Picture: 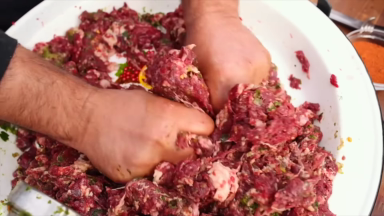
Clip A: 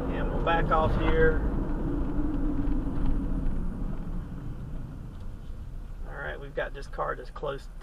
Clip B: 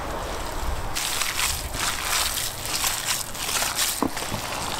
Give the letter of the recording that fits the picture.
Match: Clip B